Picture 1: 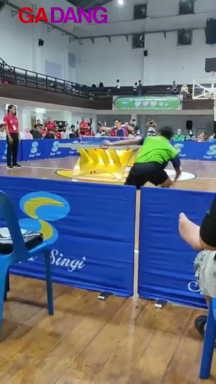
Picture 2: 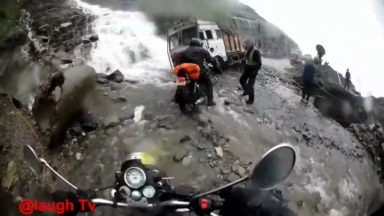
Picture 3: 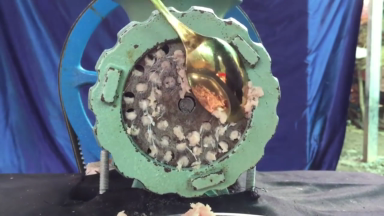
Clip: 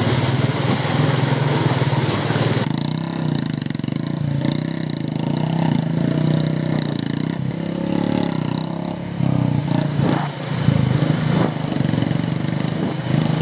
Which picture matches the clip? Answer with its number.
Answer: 2